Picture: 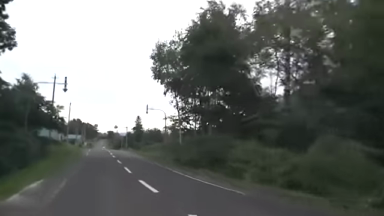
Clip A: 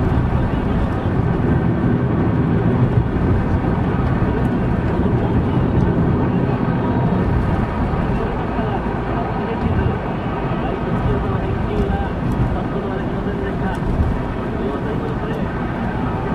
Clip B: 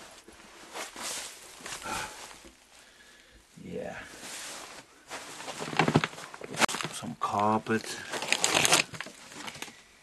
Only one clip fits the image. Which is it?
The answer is A